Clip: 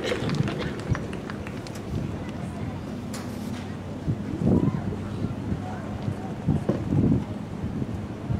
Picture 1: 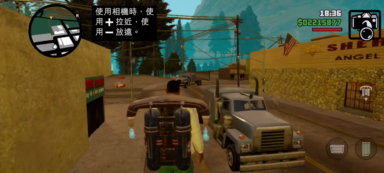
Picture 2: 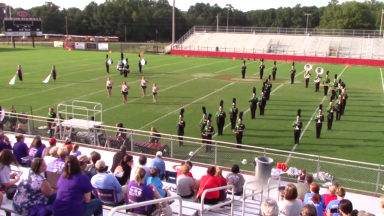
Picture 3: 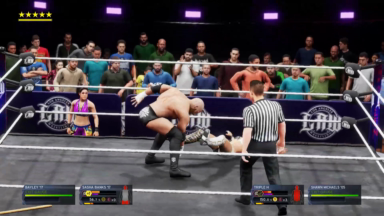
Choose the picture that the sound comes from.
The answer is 2